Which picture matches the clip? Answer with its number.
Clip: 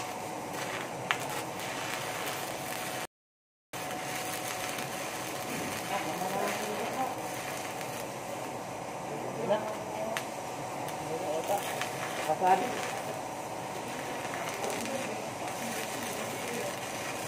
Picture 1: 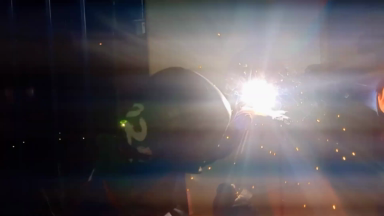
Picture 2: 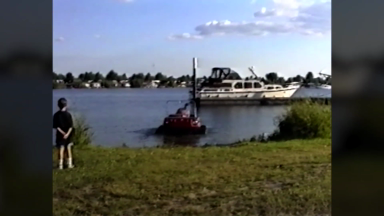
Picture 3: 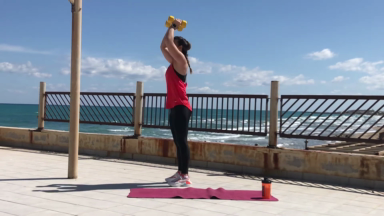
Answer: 1